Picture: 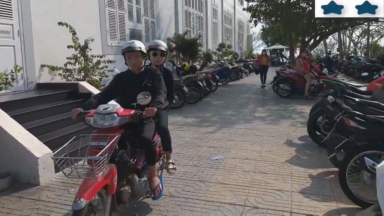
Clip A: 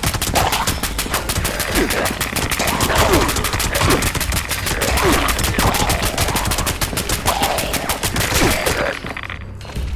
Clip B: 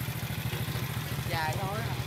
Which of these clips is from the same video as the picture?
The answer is B